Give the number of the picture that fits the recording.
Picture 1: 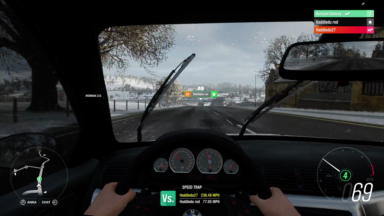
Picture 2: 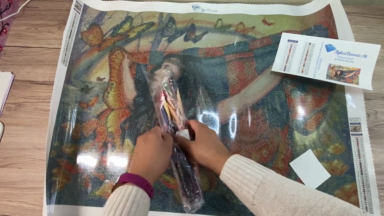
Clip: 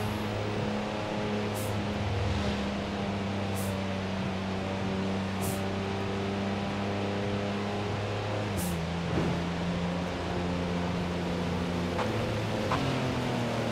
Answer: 1